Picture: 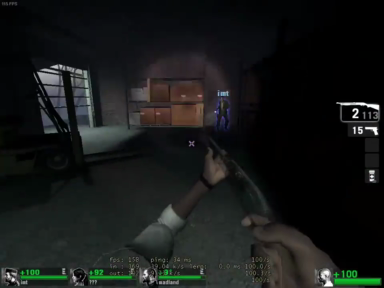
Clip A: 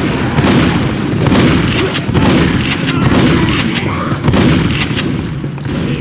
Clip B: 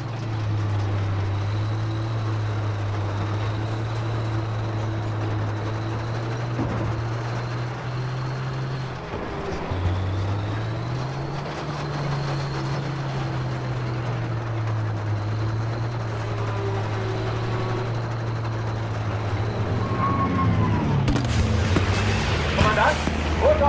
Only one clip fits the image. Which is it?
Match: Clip A